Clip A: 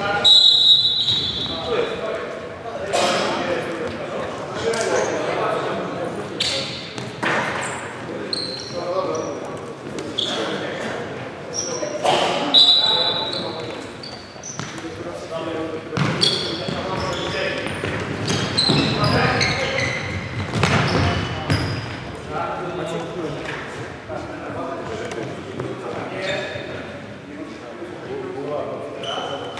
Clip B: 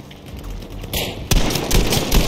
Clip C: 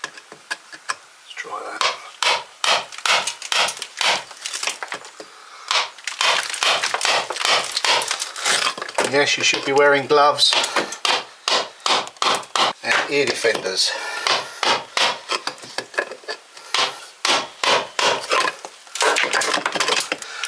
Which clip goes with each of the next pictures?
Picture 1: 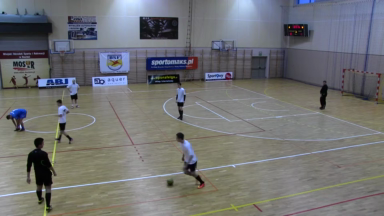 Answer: A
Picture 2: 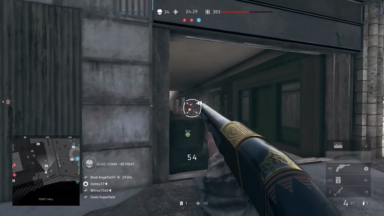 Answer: B